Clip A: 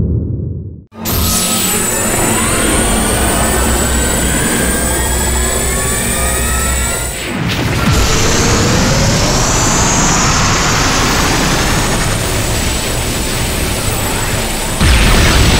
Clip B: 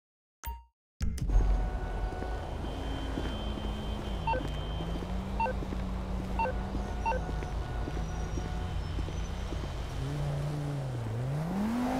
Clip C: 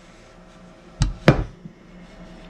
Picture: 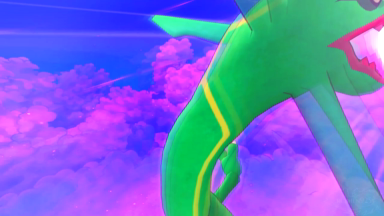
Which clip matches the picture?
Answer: A